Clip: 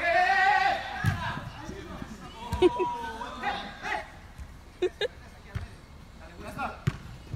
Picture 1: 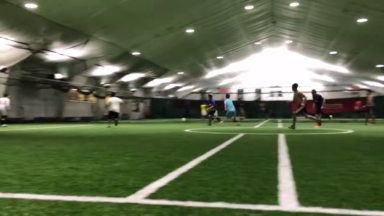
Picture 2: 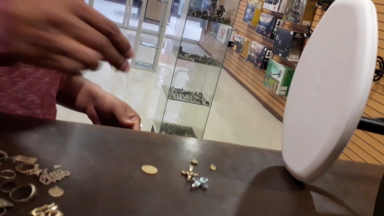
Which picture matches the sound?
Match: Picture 1